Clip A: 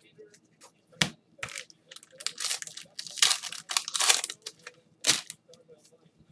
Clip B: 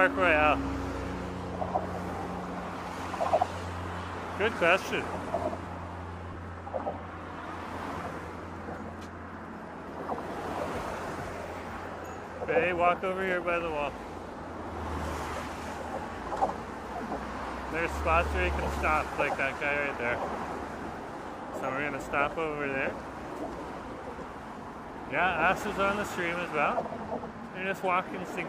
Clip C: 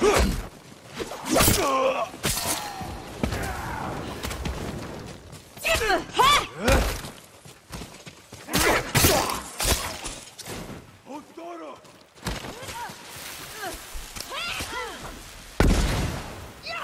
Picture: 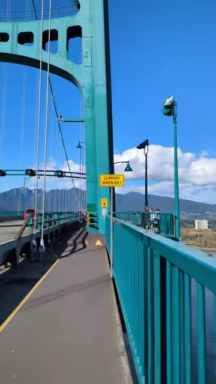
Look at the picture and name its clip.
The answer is B